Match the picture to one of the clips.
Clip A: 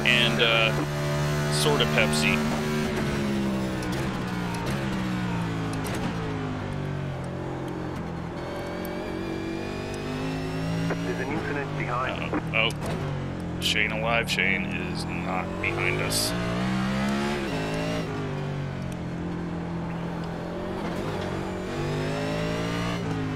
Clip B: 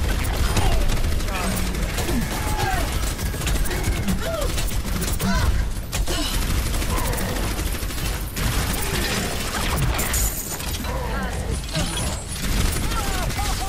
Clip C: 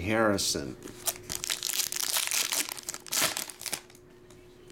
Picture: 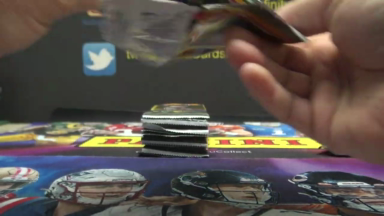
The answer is C